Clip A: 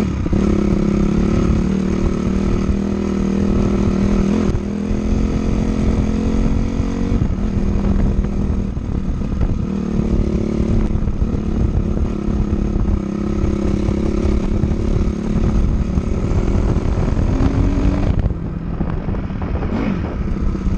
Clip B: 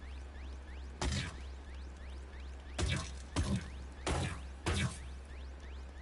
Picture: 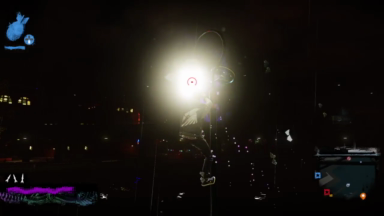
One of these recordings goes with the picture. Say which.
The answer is B